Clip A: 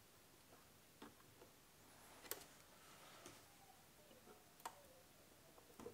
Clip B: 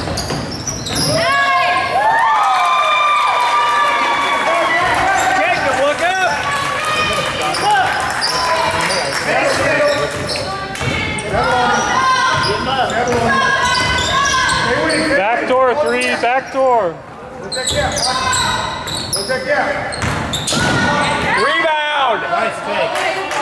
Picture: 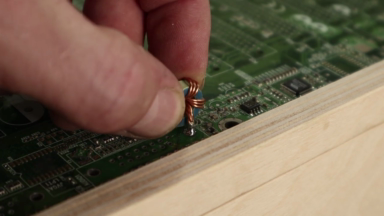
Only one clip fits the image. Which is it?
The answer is A